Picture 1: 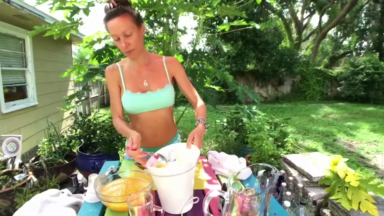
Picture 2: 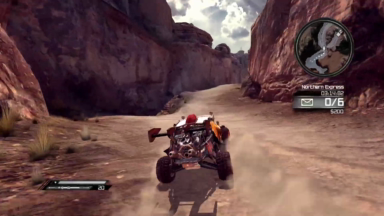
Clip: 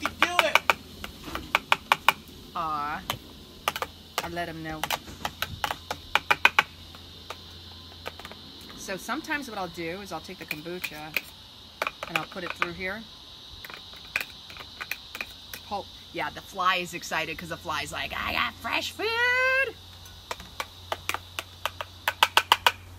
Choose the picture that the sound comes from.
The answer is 1